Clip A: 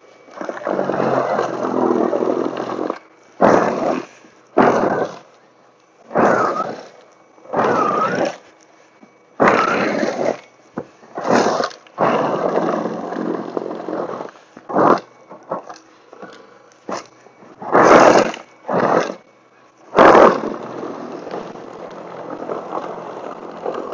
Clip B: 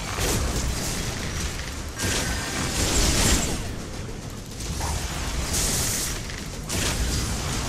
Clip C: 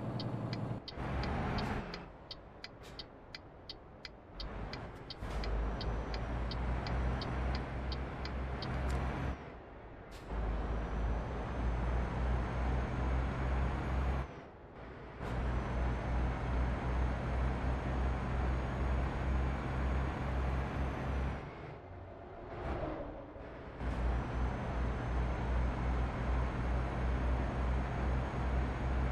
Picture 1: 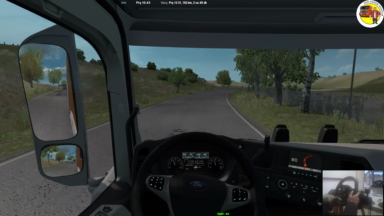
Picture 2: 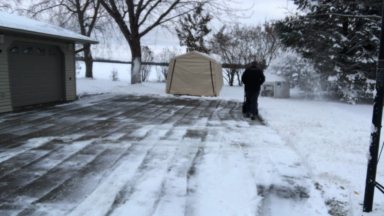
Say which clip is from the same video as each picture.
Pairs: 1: C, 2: A